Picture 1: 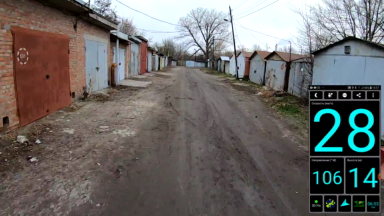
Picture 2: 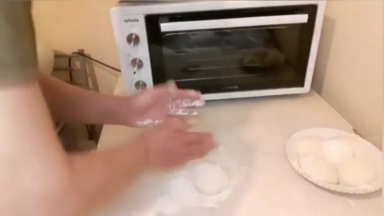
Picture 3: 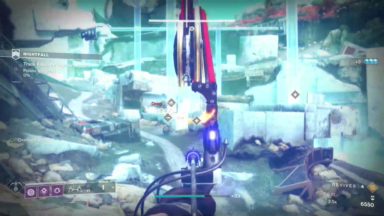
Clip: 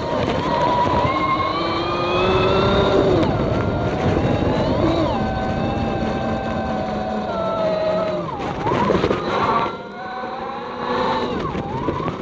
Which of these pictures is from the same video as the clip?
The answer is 1